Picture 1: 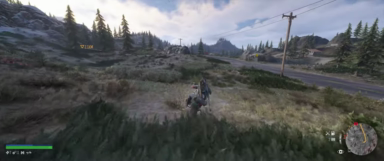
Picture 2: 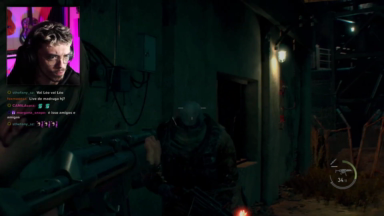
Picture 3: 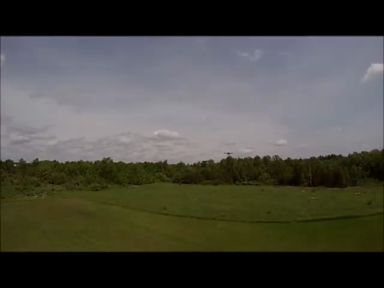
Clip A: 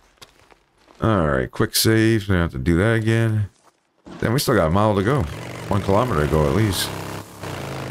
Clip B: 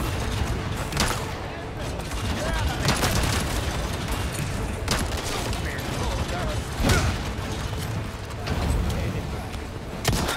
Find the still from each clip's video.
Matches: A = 1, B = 2